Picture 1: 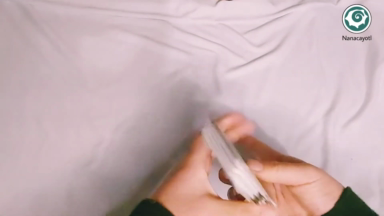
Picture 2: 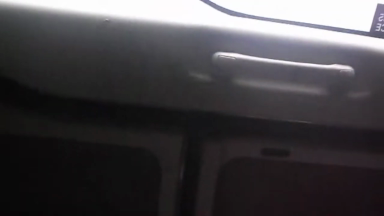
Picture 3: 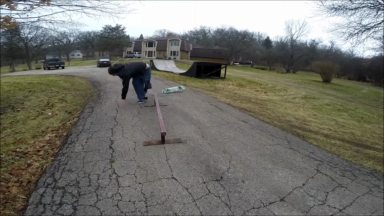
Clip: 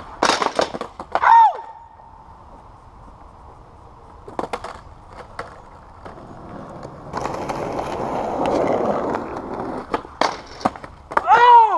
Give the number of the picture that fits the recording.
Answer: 3